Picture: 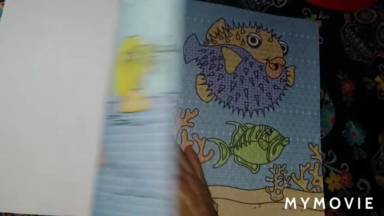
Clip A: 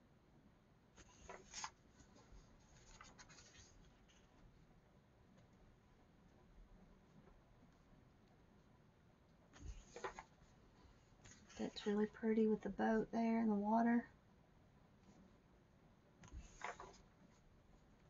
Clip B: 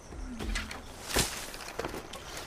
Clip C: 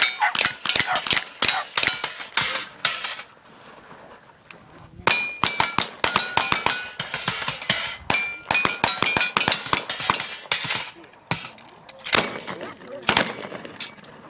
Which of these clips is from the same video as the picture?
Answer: A